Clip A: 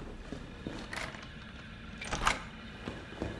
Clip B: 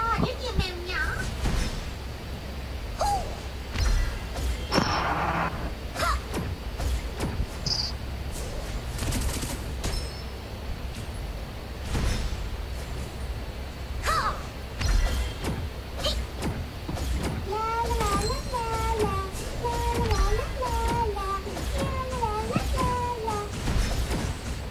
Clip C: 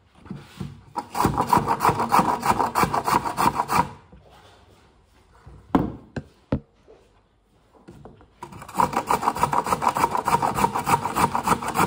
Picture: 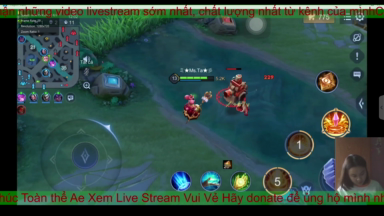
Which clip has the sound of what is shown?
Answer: B